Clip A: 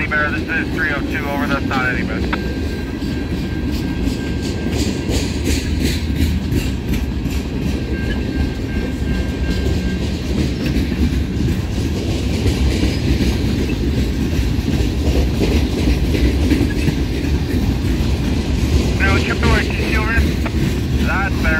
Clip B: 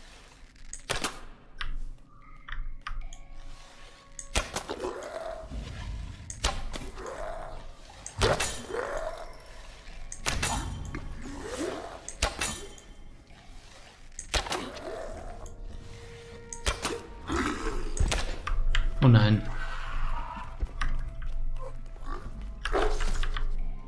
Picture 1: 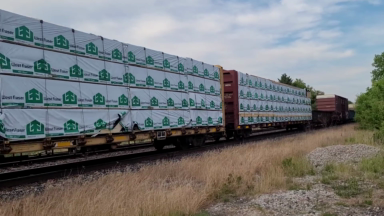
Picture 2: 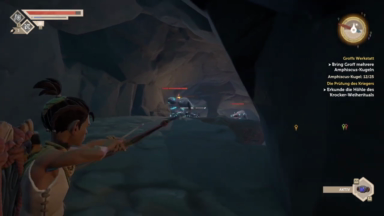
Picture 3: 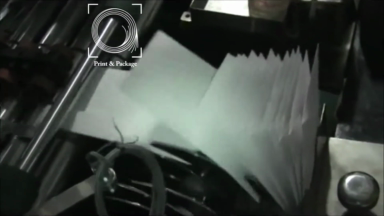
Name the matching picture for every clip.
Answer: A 1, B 2